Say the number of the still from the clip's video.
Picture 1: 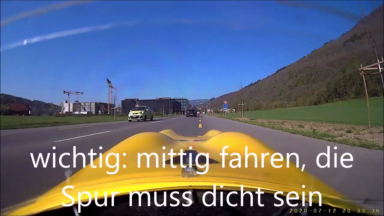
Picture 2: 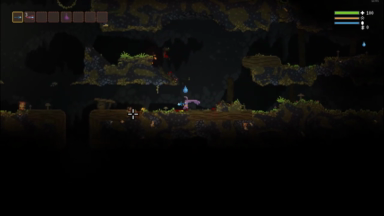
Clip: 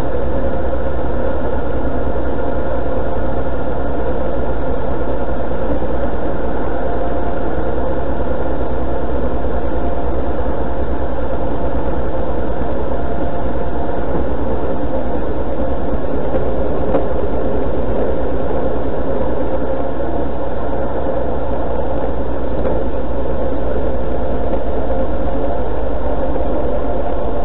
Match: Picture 1